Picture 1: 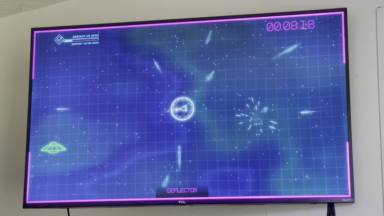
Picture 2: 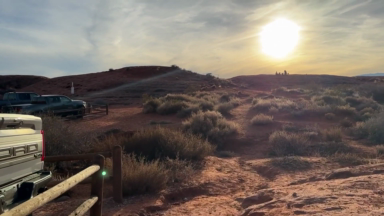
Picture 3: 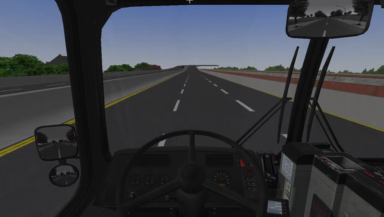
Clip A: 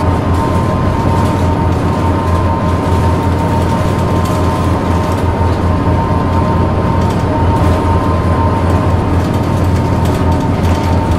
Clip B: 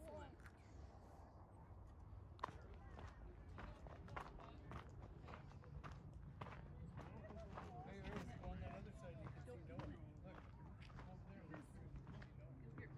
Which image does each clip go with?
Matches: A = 3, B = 2